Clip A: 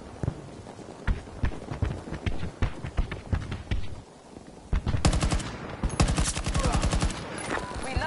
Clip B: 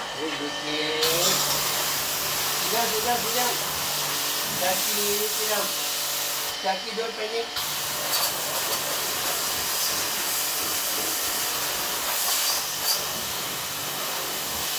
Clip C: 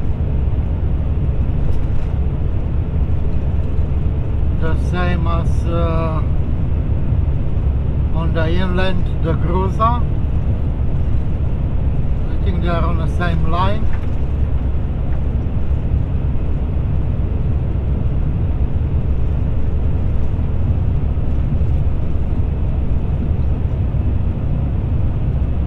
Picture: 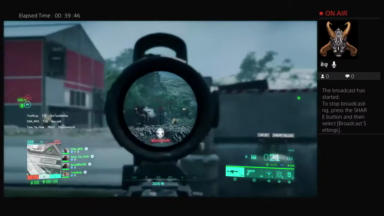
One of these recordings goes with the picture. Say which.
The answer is A